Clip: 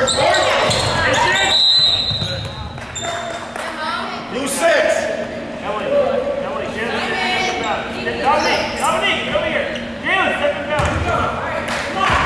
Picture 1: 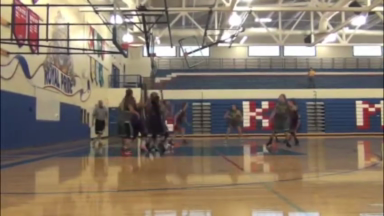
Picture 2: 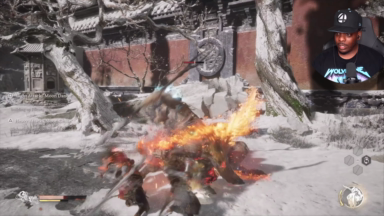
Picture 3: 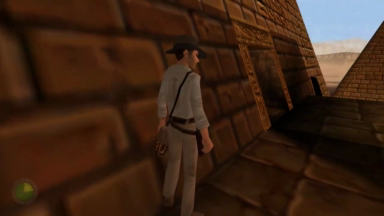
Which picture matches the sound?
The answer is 1